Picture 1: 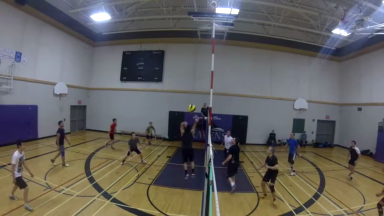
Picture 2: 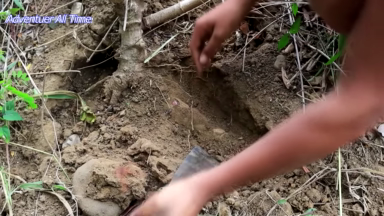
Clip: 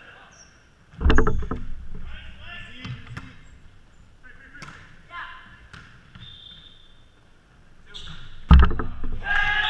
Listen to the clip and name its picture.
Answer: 1